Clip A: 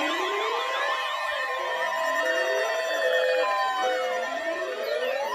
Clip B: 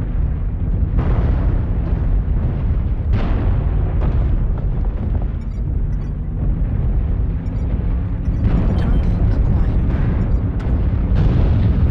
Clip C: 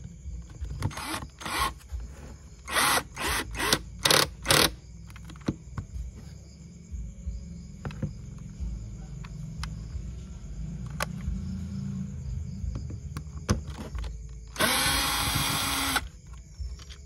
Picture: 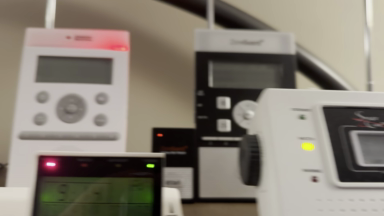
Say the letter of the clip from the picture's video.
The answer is A